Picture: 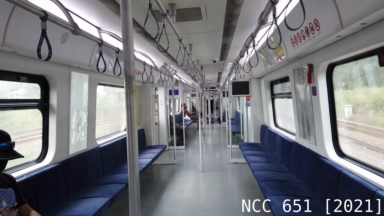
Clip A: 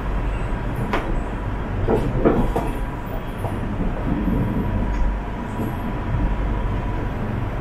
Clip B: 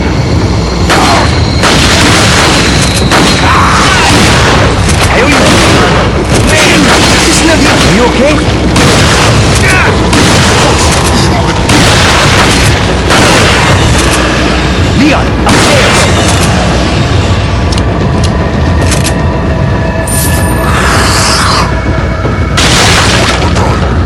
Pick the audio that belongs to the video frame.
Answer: A